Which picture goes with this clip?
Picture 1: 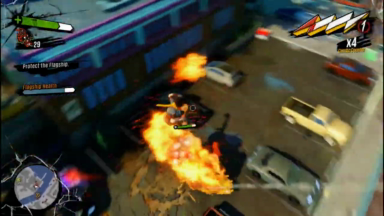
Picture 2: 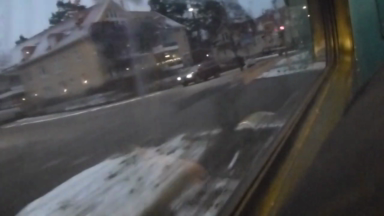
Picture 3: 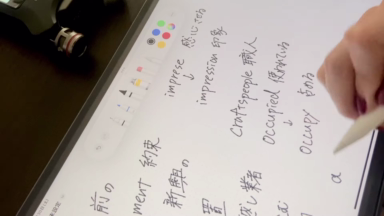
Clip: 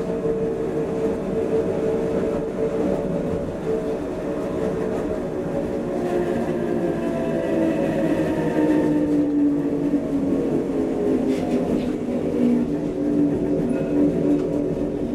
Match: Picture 2